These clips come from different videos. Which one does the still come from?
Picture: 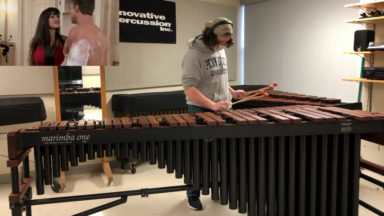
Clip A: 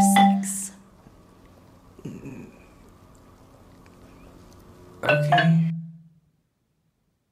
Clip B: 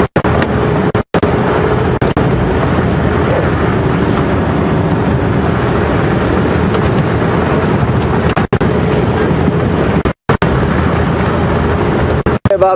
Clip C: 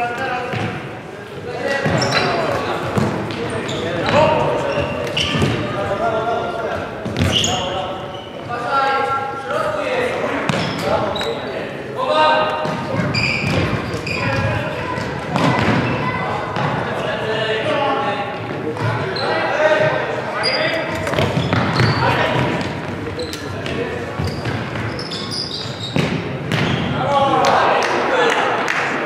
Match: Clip A